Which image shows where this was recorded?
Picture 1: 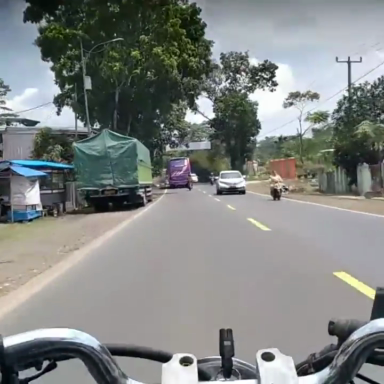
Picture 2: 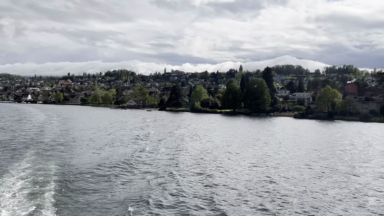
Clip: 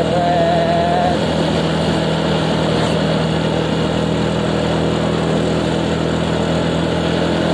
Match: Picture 1